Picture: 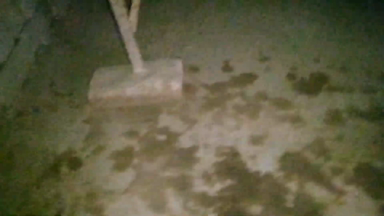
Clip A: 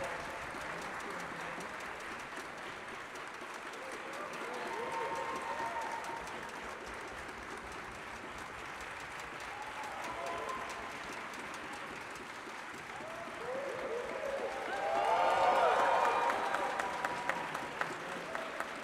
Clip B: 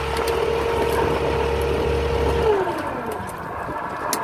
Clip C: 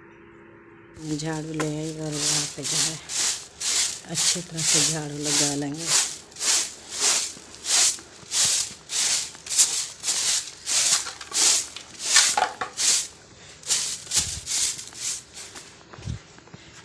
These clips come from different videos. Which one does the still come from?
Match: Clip C